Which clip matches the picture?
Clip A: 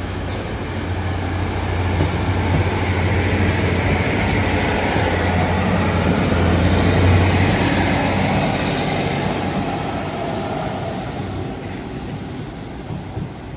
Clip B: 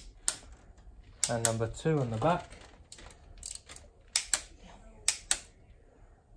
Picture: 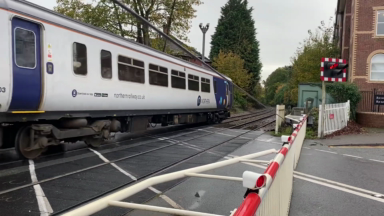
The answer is A